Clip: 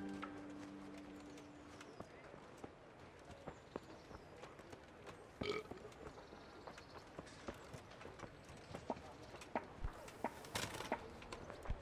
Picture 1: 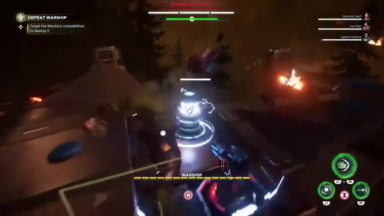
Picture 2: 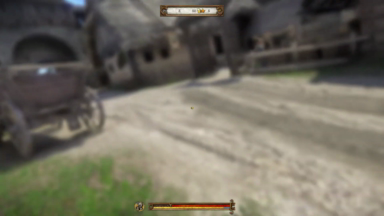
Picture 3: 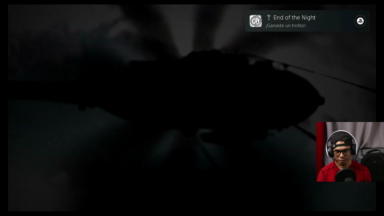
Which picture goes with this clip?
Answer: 2